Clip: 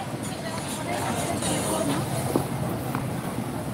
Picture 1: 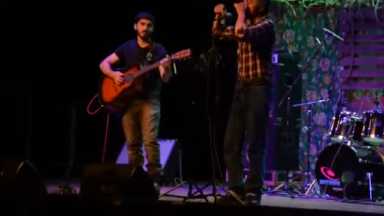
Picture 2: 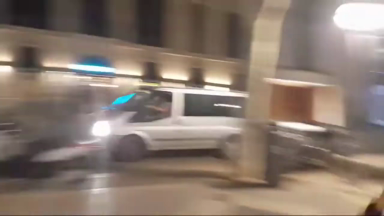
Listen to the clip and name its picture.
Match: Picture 2